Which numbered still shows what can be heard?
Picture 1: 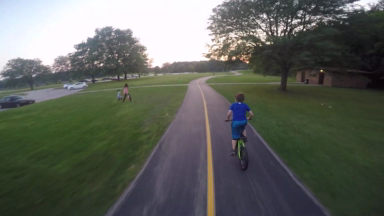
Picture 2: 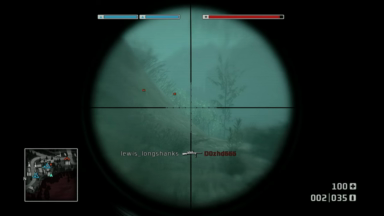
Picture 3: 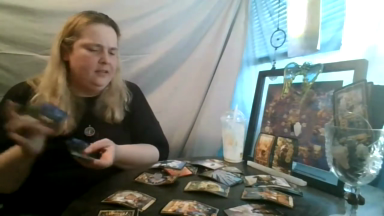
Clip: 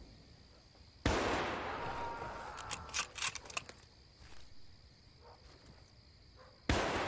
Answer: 2